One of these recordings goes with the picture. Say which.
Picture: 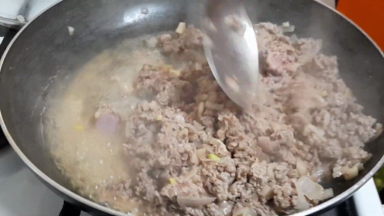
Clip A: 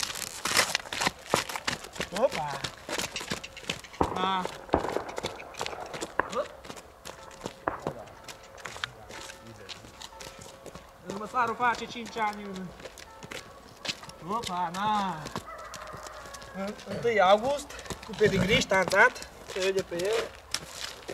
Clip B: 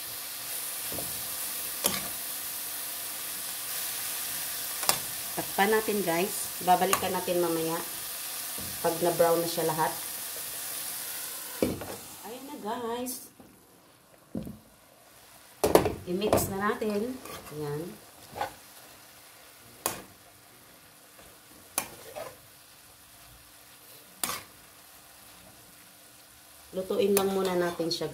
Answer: B